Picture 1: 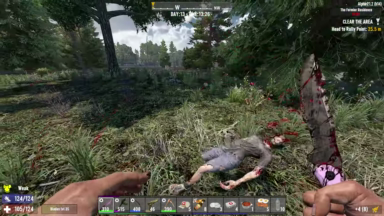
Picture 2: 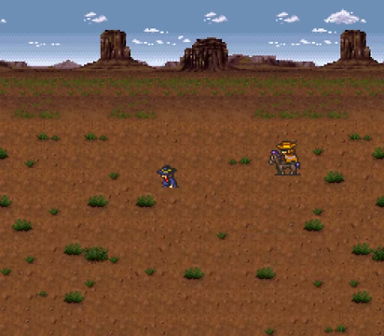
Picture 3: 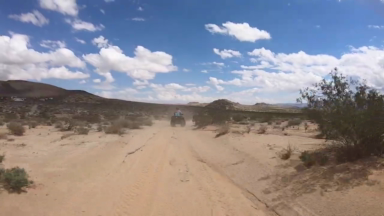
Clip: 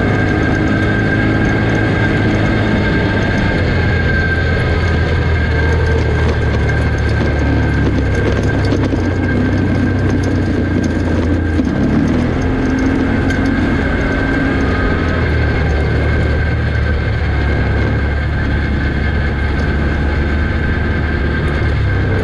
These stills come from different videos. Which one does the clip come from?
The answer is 3